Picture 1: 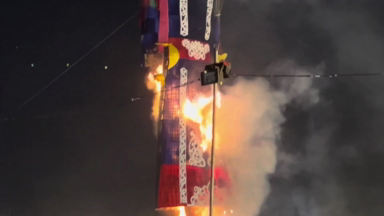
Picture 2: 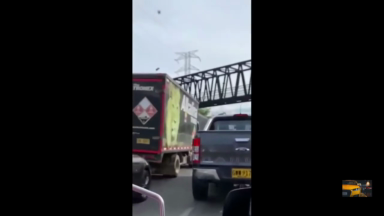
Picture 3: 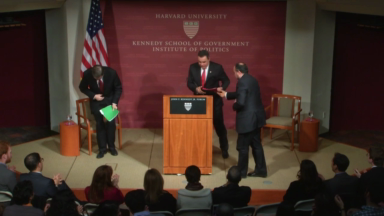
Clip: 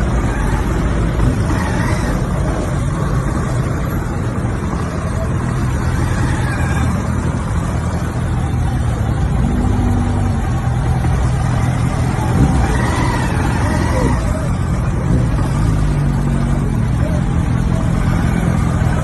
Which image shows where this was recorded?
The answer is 2